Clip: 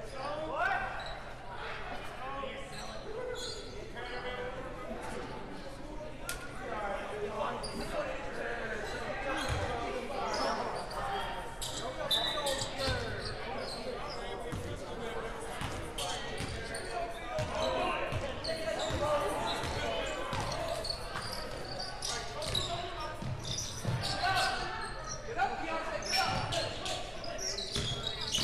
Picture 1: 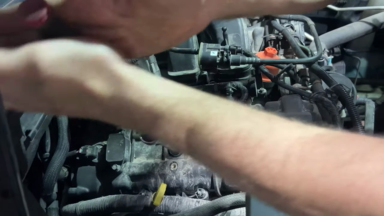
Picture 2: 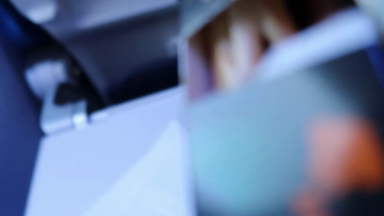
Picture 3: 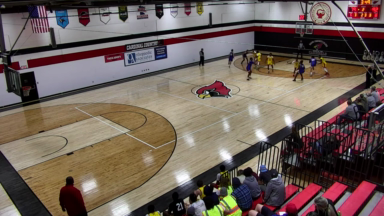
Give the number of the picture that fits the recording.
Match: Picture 3